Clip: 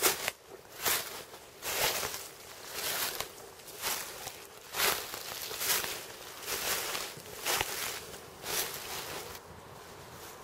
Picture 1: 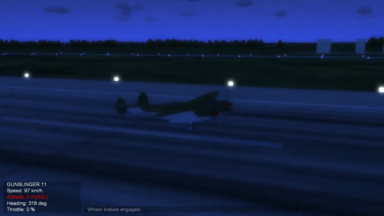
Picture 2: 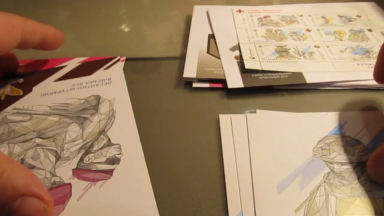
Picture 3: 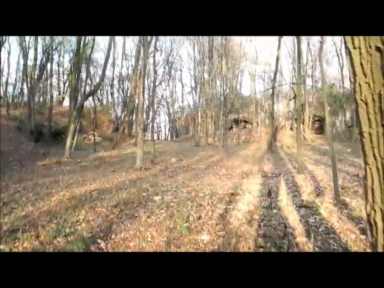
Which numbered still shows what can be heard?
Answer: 3